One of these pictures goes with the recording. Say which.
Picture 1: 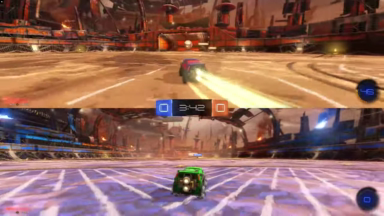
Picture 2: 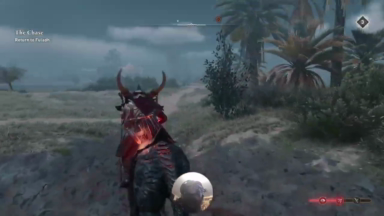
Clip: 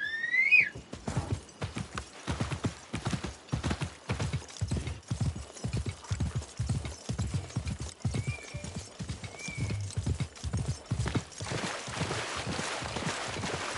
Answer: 2